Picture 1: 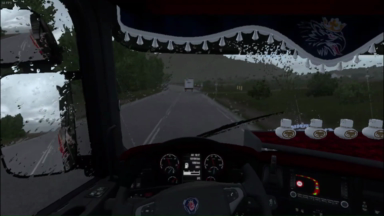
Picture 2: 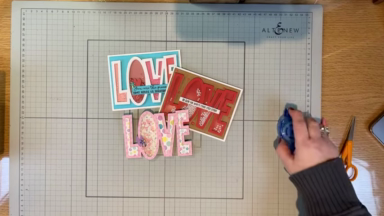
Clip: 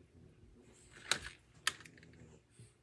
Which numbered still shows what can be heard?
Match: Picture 2